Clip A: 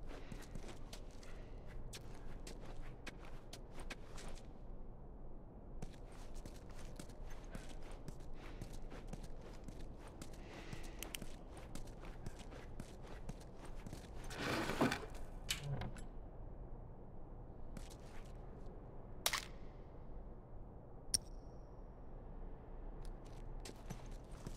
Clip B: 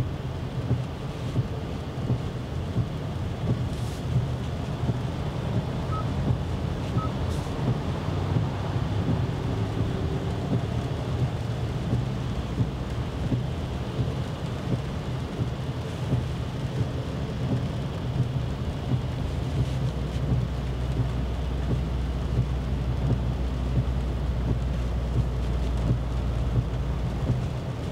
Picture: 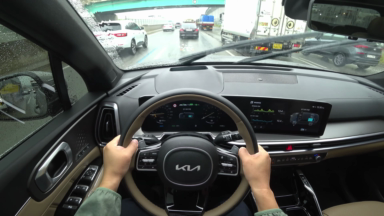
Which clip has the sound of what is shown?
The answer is B